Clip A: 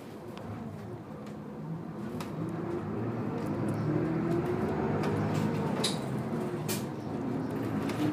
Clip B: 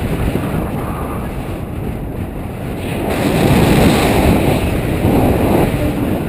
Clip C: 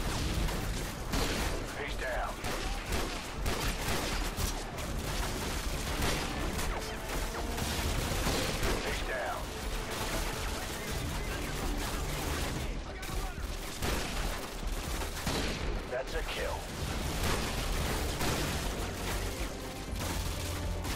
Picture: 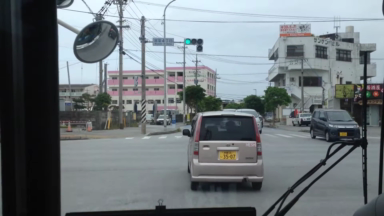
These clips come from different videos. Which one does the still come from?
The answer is A